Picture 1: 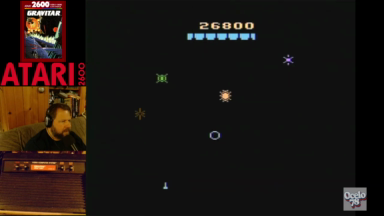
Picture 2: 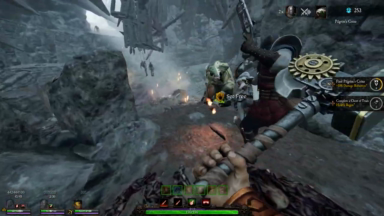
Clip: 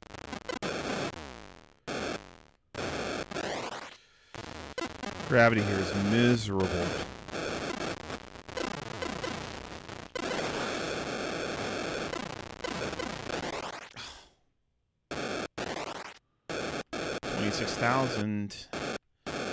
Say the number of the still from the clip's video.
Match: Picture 1